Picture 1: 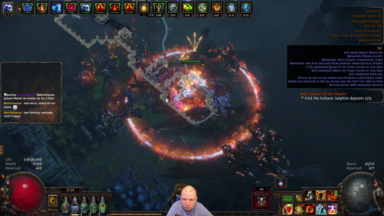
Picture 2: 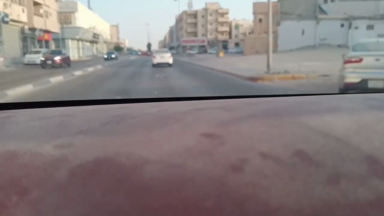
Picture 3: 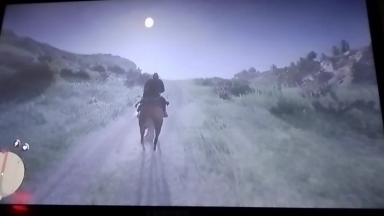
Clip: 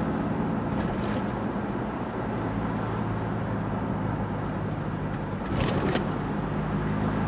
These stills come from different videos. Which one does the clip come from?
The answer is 2